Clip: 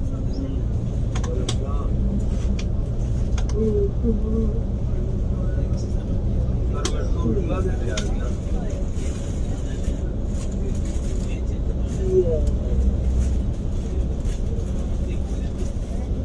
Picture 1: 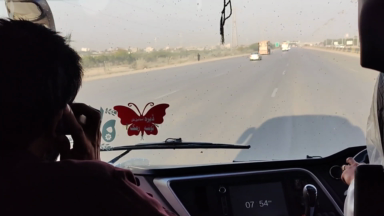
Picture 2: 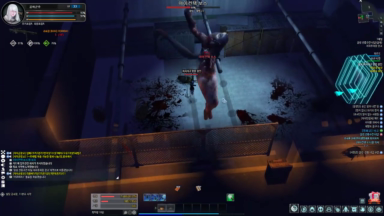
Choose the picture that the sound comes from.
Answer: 1